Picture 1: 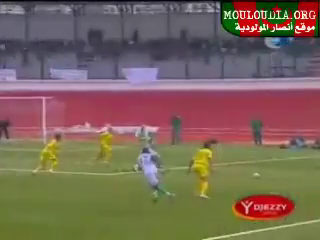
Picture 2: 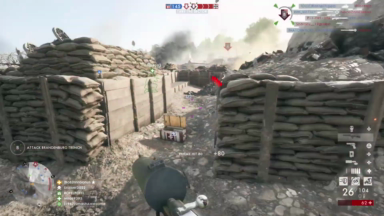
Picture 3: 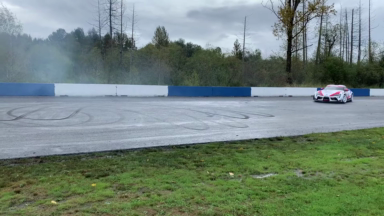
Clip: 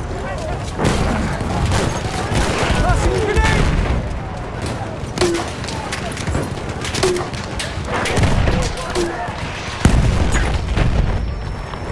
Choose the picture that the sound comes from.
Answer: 2